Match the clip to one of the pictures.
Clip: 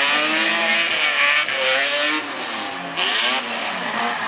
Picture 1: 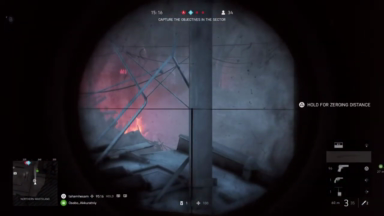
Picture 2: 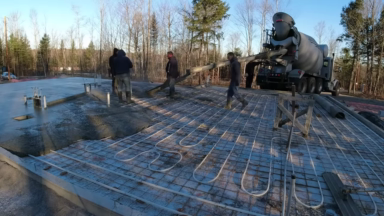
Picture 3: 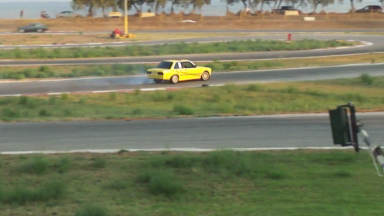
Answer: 3